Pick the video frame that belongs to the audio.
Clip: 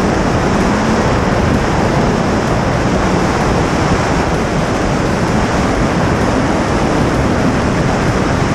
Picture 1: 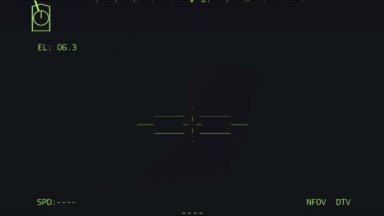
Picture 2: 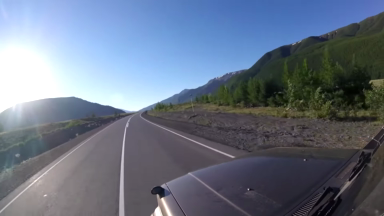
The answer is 2